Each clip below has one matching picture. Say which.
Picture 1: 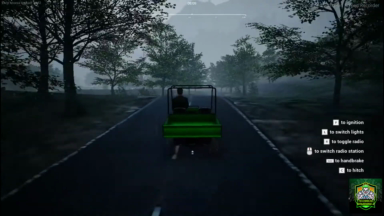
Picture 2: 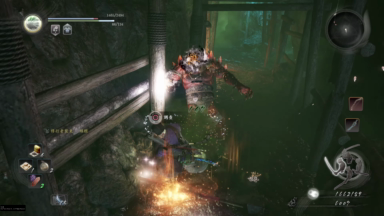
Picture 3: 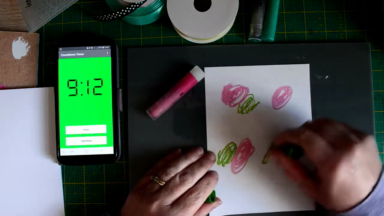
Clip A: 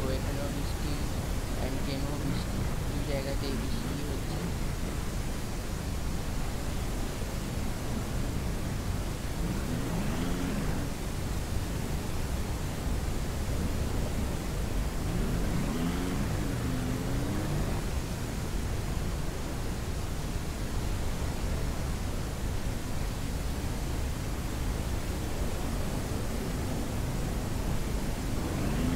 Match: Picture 1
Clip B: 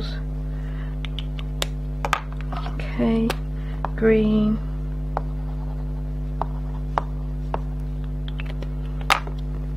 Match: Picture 3